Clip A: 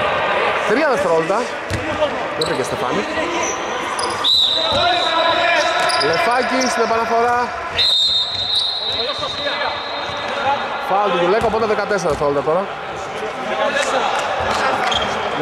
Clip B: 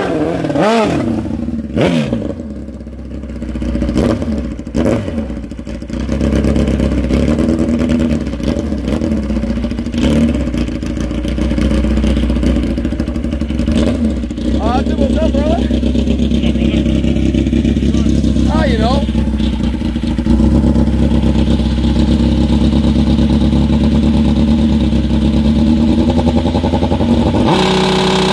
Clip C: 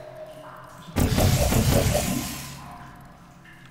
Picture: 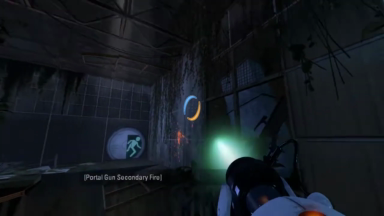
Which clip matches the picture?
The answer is C